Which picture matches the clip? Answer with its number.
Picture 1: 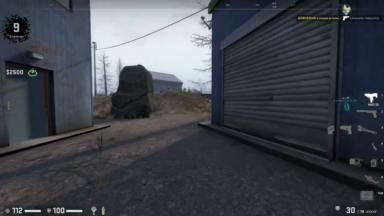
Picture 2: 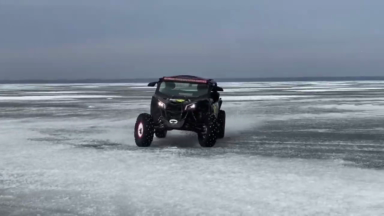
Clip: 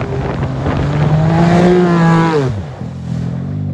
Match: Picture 2